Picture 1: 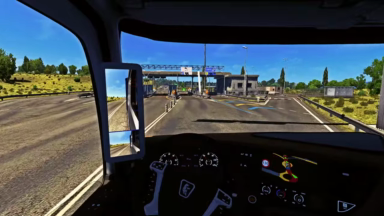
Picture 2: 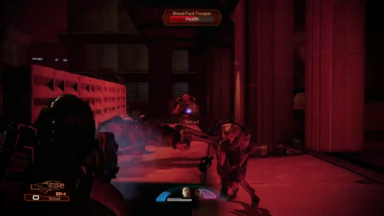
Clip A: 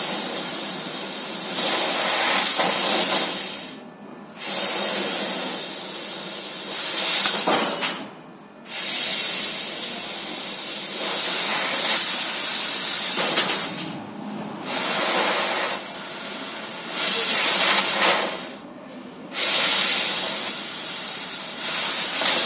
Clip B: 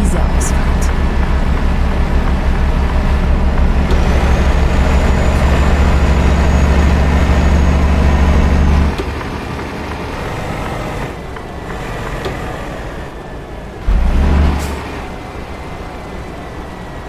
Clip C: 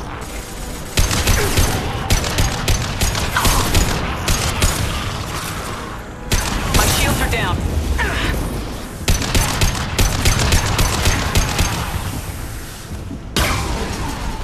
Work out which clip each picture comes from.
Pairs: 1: B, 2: C